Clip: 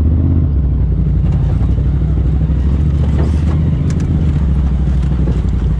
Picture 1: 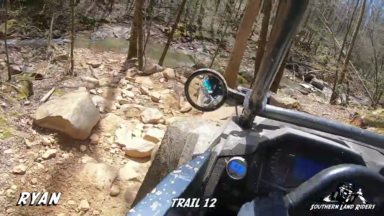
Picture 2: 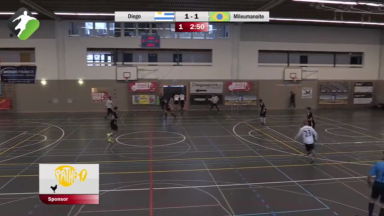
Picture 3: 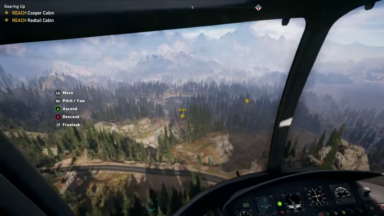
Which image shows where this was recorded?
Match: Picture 1